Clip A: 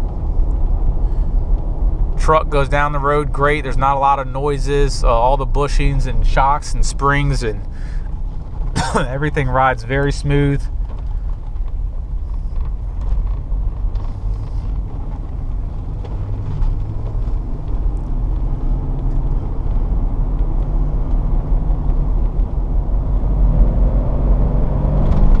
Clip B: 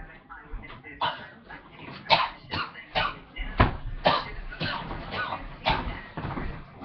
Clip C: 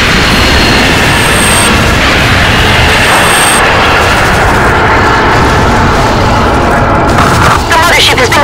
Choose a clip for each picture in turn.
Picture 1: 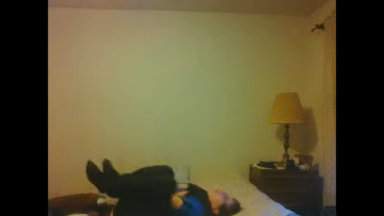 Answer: B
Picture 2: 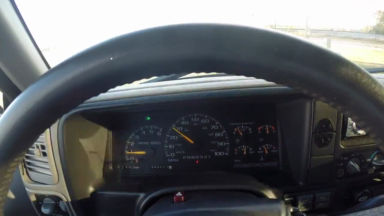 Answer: A